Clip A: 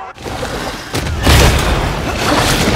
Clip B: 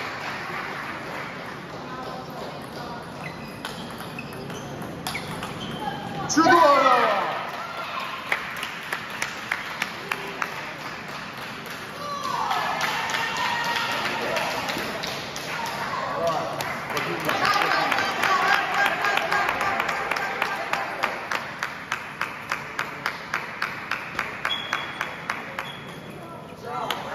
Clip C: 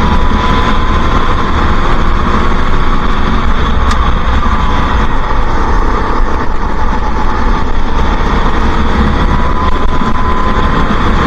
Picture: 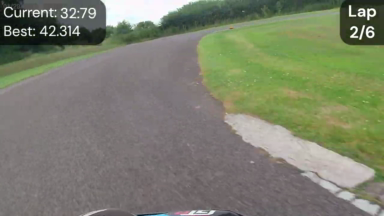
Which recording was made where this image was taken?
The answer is C